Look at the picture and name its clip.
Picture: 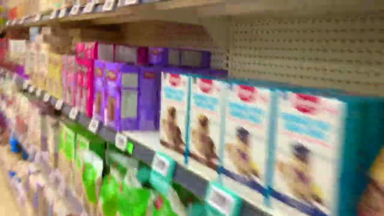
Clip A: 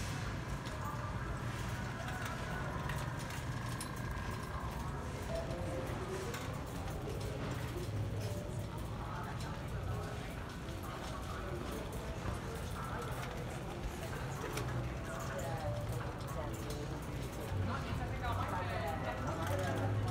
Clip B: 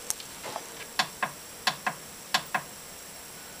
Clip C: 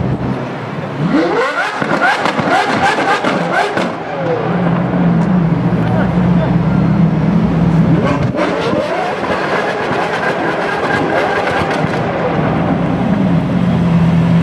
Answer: A